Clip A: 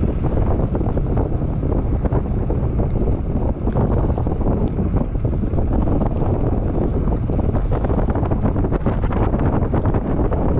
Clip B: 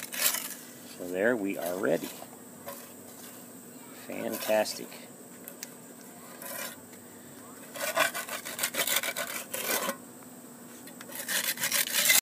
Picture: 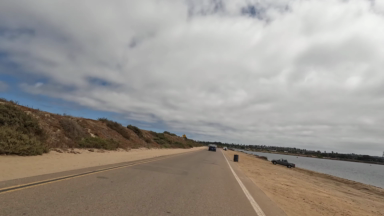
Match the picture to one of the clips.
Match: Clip A